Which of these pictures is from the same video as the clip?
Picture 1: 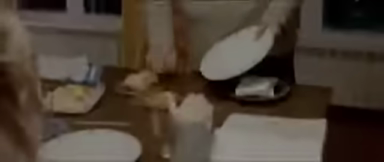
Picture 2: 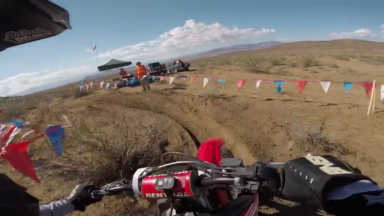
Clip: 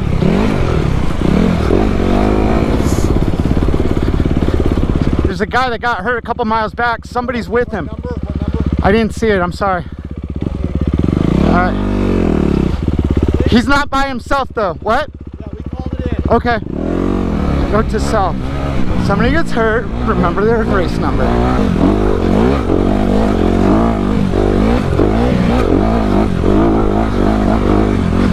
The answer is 2